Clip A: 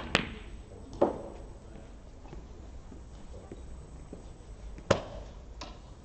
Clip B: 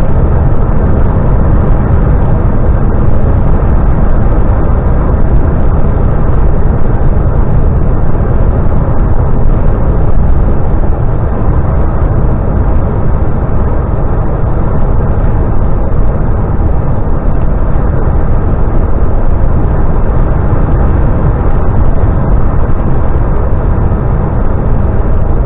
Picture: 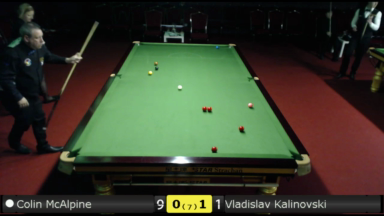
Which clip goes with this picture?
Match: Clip A